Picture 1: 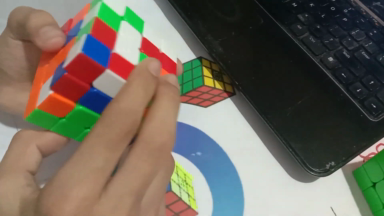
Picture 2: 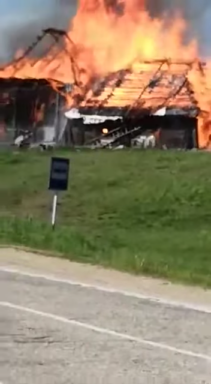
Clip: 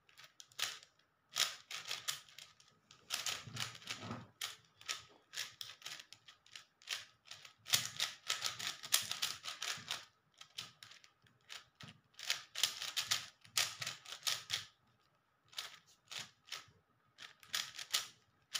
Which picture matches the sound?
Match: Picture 1